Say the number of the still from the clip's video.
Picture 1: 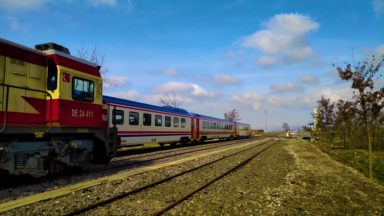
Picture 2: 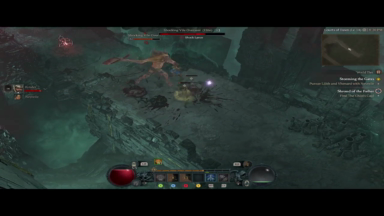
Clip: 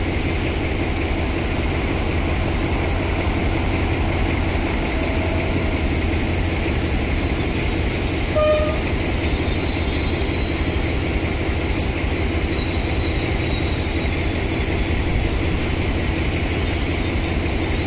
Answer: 1